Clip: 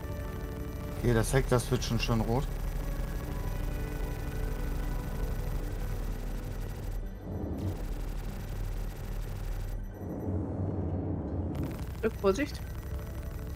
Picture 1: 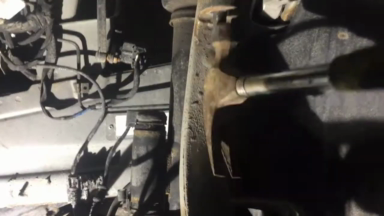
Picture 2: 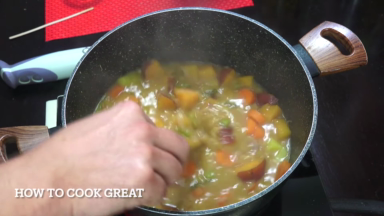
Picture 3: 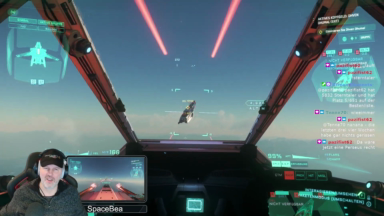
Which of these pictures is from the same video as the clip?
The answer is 3